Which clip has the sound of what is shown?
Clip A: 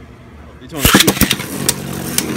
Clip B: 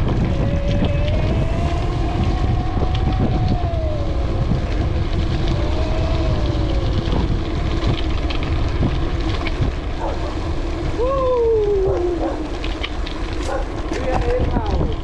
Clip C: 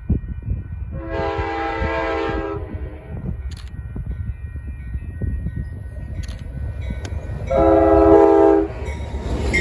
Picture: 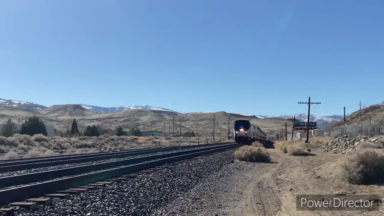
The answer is C